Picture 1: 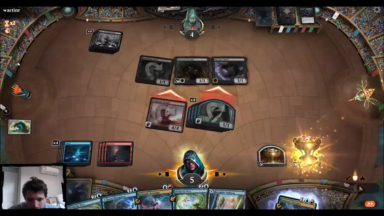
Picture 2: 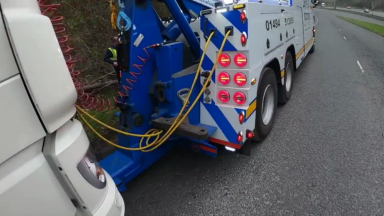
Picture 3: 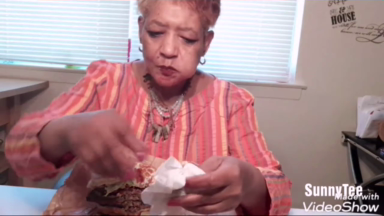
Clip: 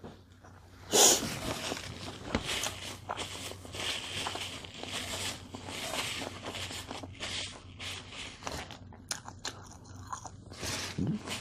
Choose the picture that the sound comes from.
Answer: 3